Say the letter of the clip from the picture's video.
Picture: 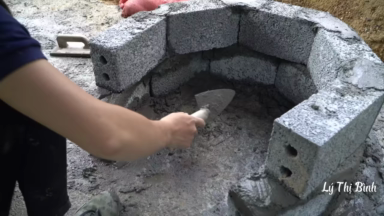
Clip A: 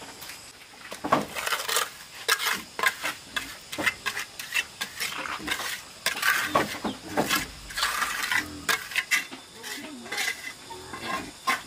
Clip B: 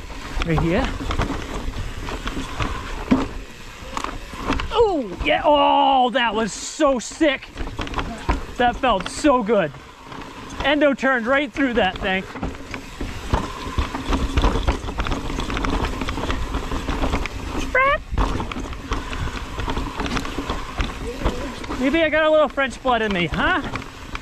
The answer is A